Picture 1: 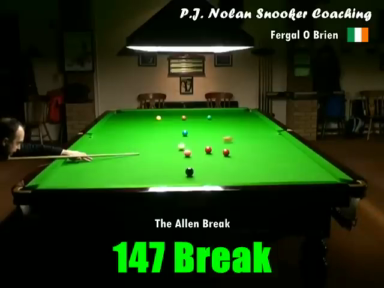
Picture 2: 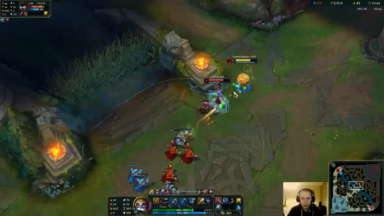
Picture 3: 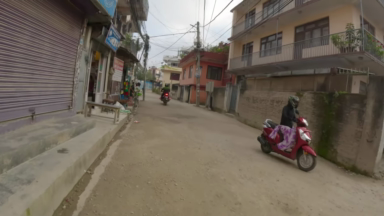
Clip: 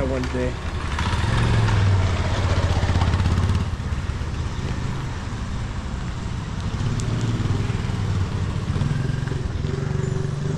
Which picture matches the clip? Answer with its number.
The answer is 3